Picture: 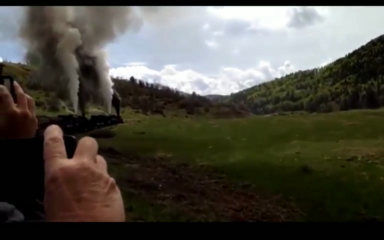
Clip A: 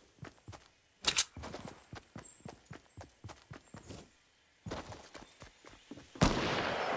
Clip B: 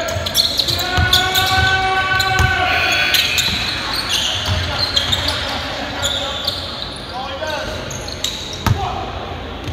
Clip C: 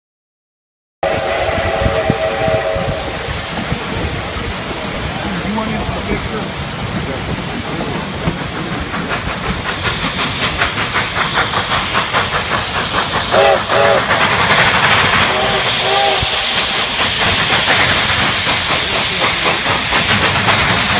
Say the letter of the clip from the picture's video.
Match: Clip C